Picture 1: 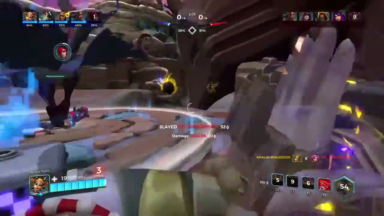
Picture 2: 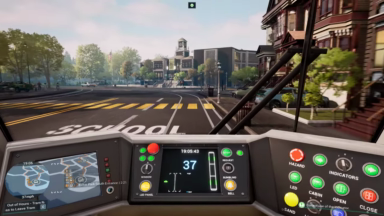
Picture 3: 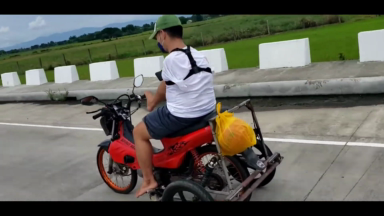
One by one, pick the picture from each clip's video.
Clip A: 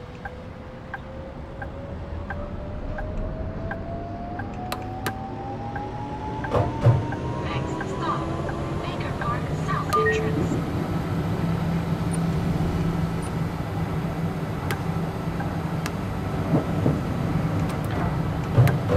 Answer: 2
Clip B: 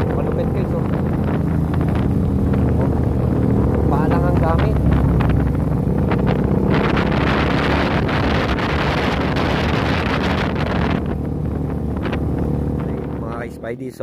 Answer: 3